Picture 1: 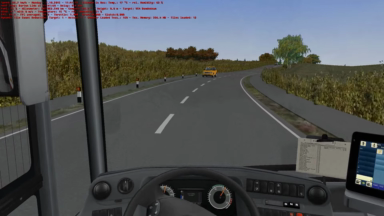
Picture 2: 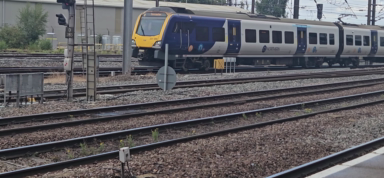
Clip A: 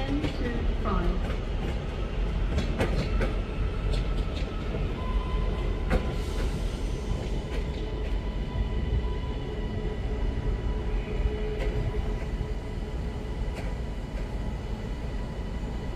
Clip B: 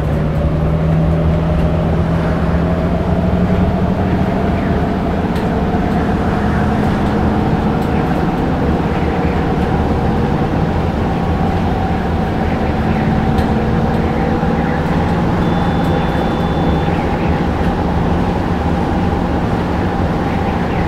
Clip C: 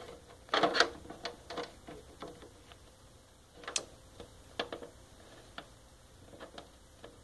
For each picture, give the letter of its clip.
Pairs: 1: B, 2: A